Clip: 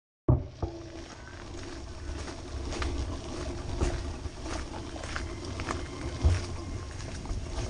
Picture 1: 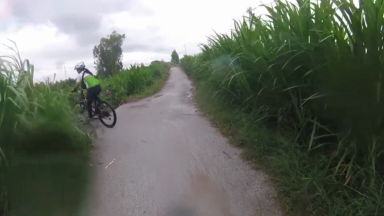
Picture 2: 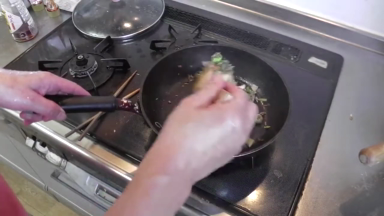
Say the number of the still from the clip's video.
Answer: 1